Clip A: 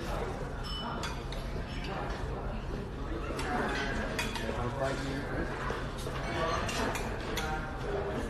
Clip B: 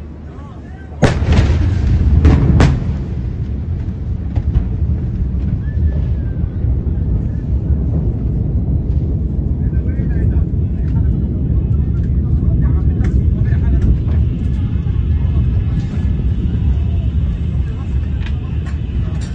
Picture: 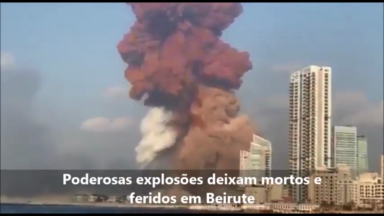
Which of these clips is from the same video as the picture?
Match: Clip B